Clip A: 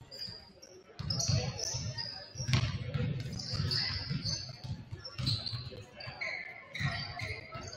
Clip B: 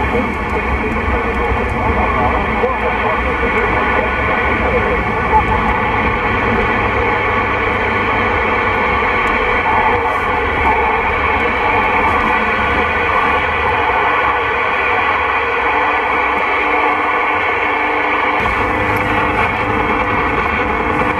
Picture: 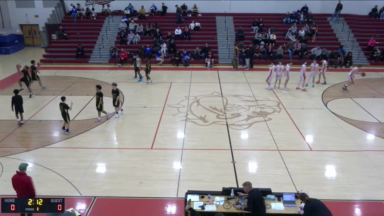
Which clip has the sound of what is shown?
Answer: A